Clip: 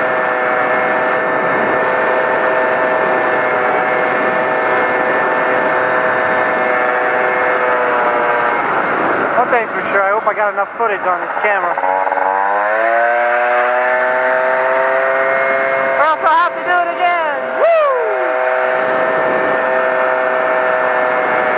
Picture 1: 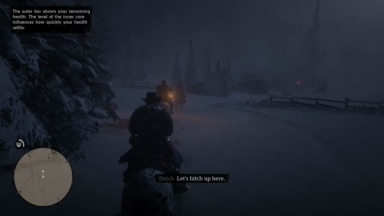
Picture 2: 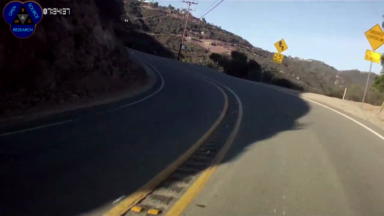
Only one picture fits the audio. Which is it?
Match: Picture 2